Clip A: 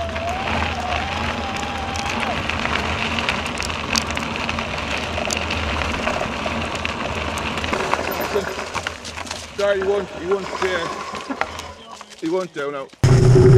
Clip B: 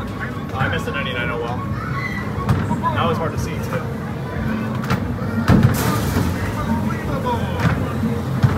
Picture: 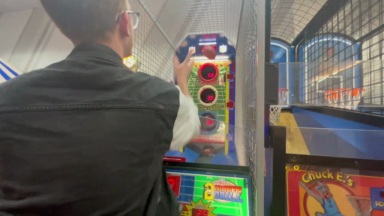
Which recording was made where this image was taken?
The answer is B